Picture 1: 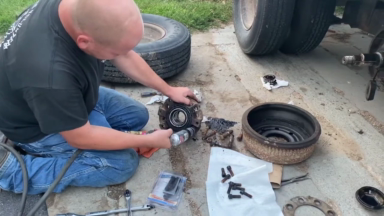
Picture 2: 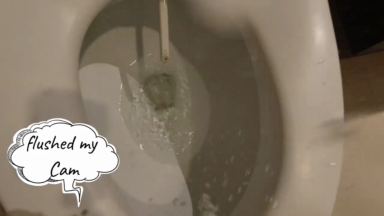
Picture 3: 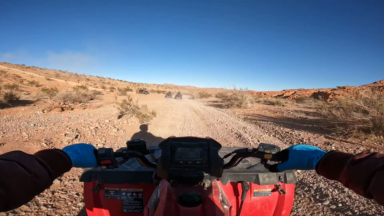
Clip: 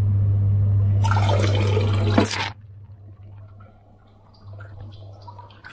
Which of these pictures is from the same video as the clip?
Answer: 2